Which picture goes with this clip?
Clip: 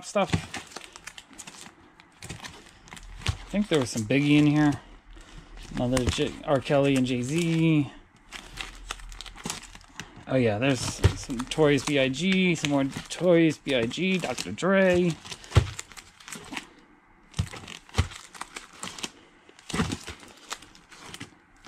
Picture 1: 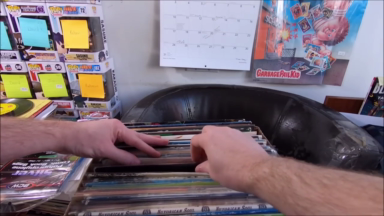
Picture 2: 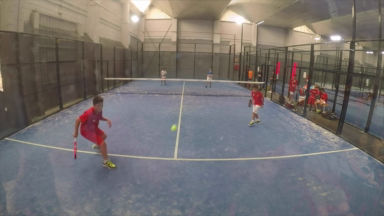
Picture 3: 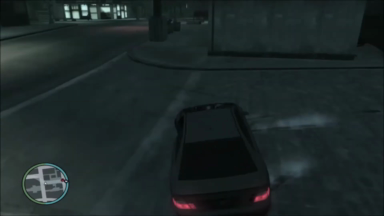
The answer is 1